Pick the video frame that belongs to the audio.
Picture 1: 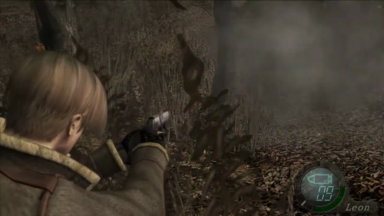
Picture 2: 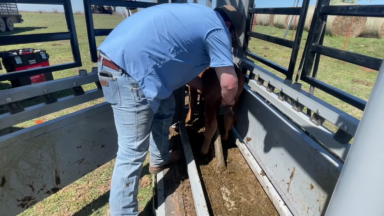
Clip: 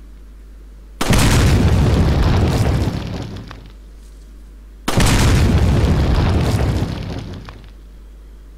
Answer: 1